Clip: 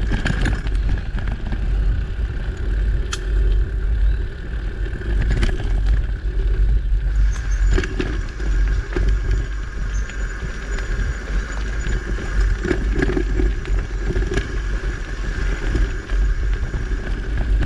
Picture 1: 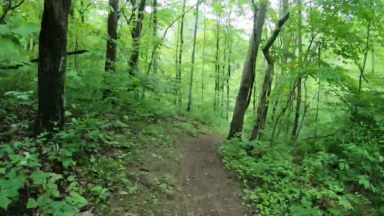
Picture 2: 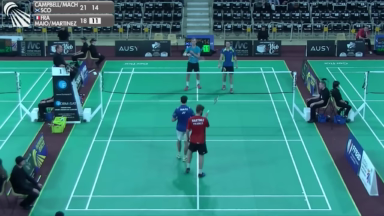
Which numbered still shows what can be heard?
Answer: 1